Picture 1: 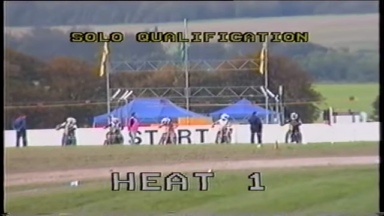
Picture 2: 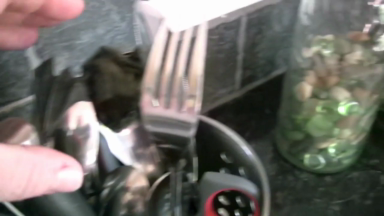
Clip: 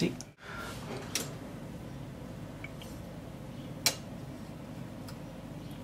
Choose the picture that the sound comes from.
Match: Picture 2